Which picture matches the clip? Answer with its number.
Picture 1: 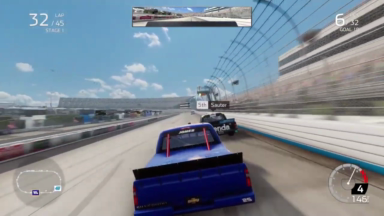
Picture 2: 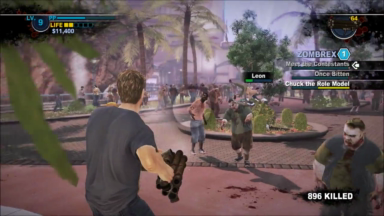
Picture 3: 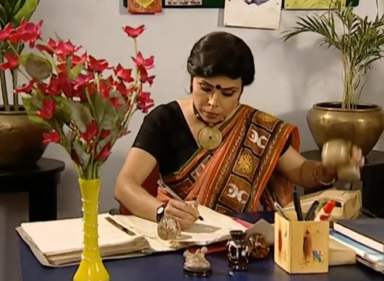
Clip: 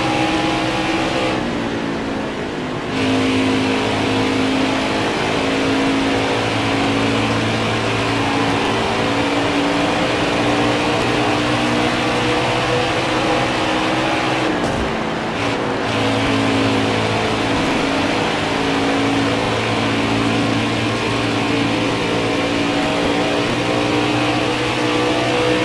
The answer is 1